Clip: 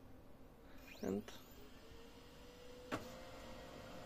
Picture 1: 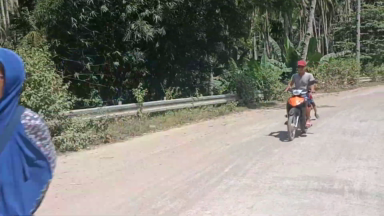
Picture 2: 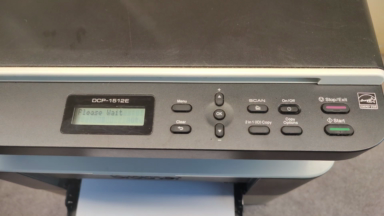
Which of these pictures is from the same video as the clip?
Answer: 2